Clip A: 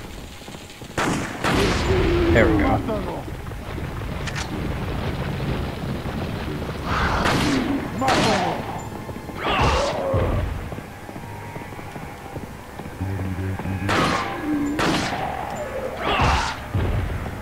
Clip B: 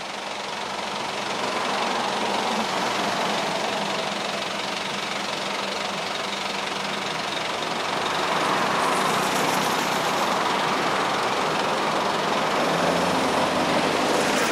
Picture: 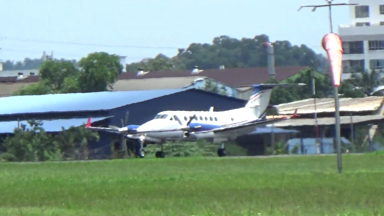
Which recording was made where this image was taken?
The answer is B